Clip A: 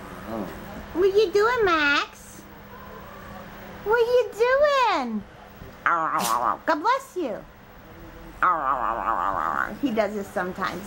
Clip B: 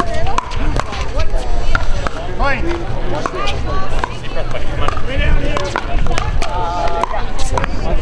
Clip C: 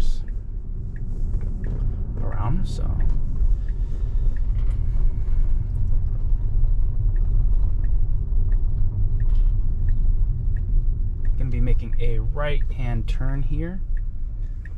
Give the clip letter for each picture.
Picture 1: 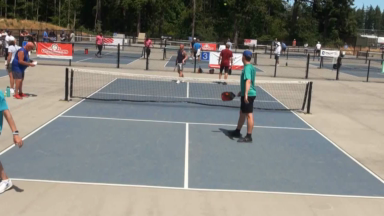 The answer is B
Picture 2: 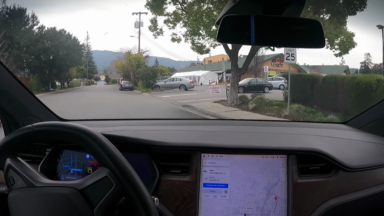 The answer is C